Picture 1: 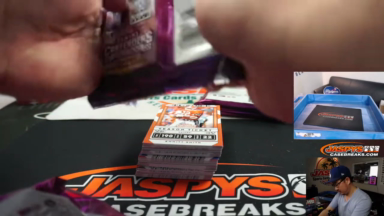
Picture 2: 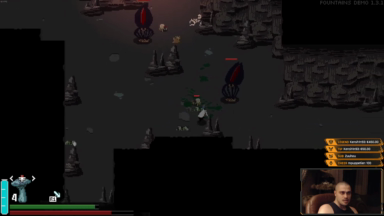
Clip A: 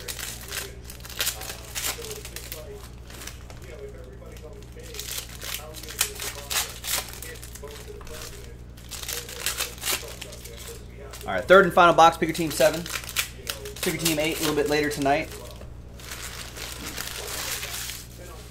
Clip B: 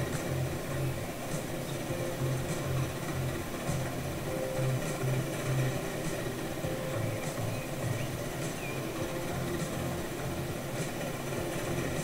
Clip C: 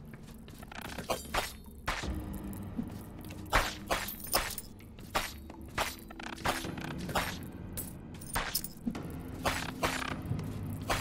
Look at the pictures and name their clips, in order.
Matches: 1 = A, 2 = C